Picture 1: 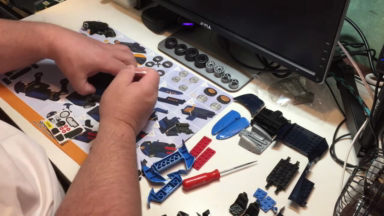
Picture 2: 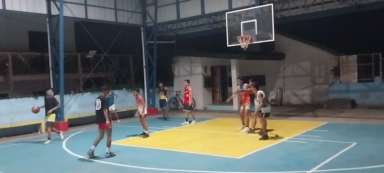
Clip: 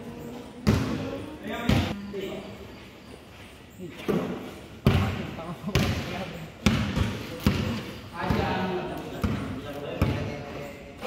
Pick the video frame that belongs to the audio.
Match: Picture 2